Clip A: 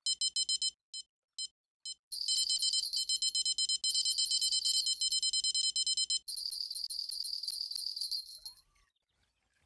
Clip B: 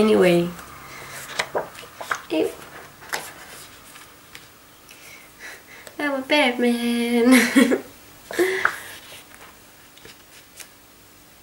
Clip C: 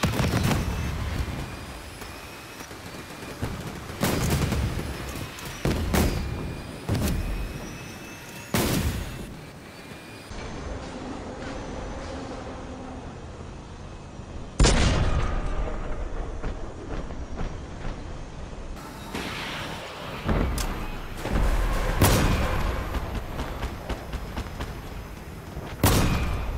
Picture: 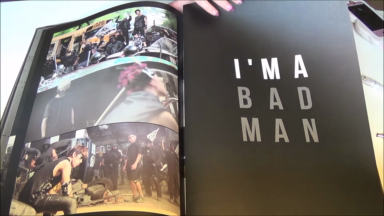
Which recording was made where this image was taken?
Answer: B